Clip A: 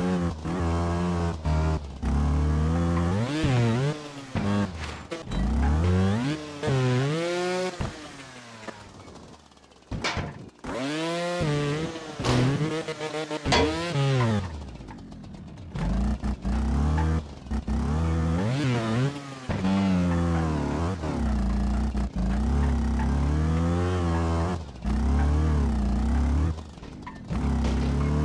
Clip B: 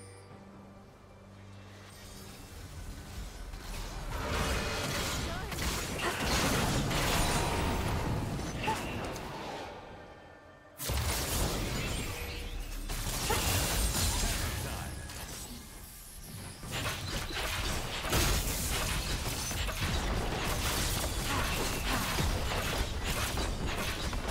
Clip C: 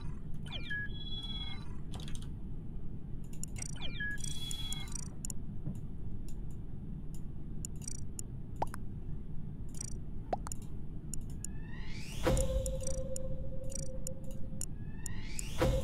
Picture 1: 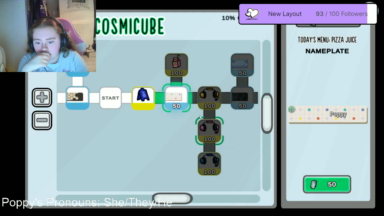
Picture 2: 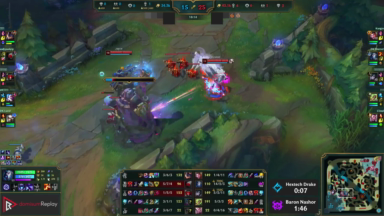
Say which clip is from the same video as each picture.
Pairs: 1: C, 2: B